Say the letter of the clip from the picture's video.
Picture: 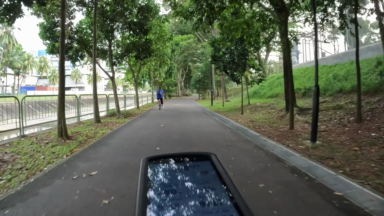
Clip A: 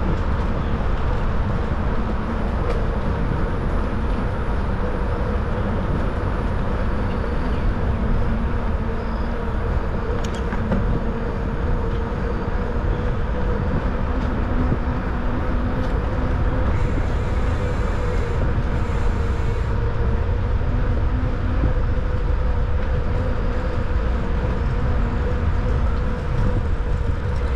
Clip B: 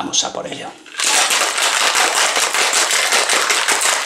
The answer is A